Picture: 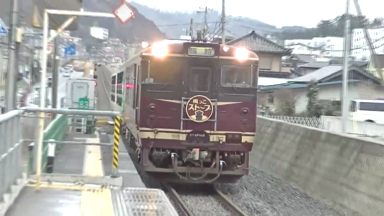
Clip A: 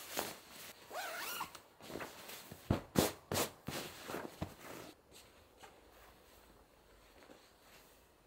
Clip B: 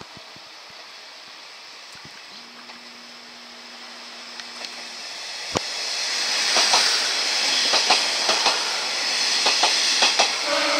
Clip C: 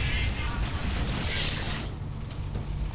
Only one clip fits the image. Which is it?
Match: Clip B